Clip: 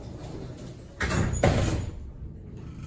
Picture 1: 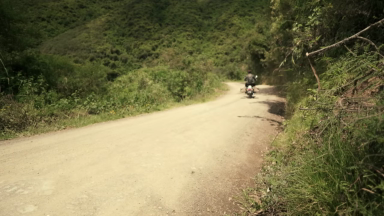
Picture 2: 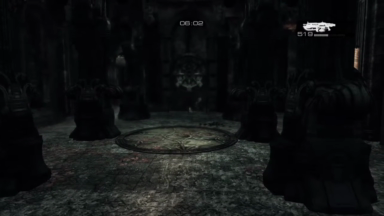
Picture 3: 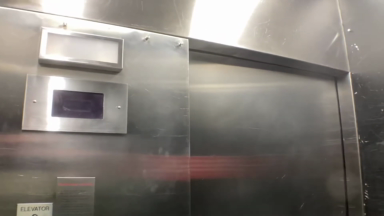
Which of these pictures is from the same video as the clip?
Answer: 3